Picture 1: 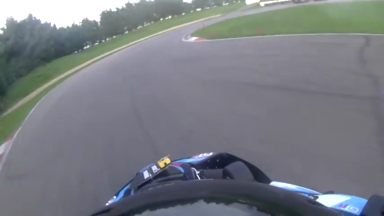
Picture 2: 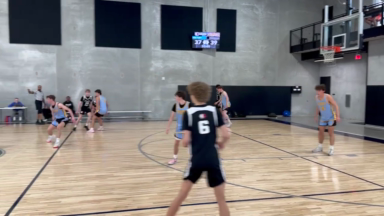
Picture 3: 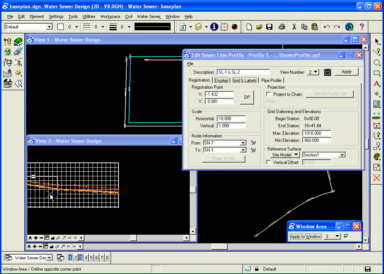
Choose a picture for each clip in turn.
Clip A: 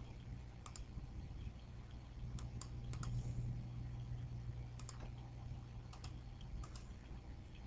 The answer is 3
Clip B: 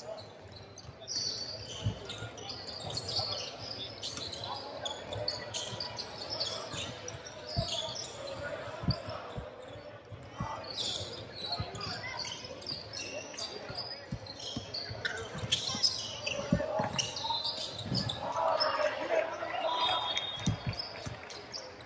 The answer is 2